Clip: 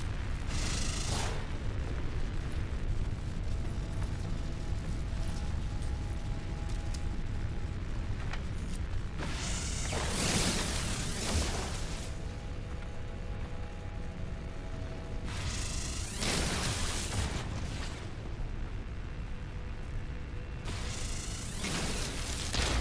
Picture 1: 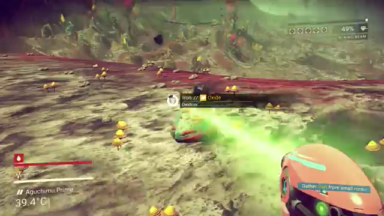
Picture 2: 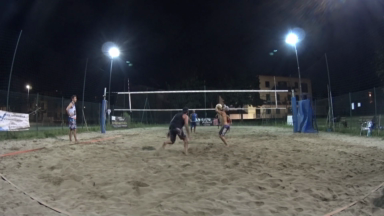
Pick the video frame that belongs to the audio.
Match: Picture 1